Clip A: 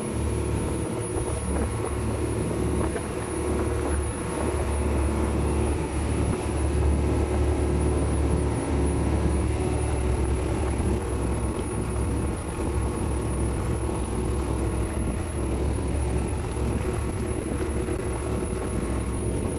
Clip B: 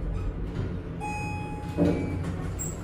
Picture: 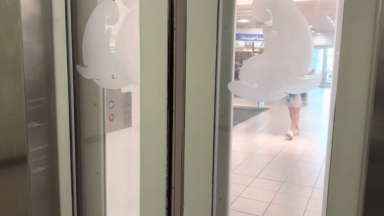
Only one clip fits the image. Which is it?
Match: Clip B